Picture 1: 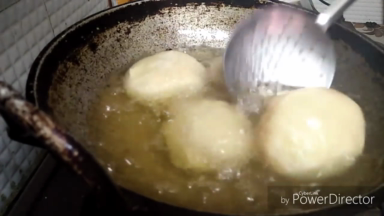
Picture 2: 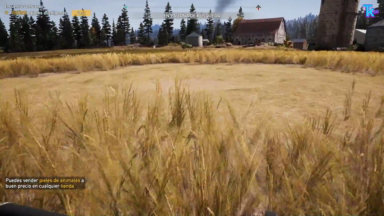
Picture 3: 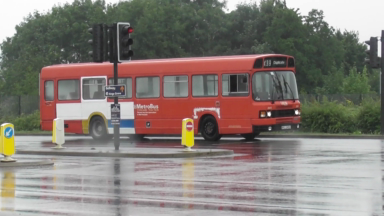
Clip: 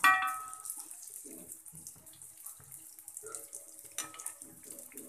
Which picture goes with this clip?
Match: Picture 1